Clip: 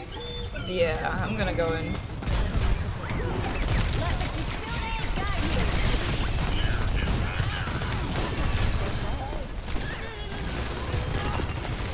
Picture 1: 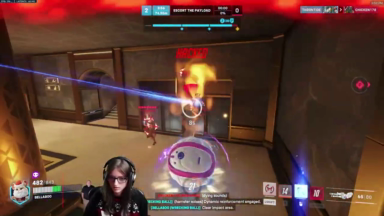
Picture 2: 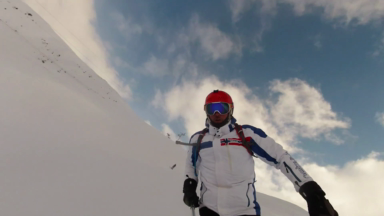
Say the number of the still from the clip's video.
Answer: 1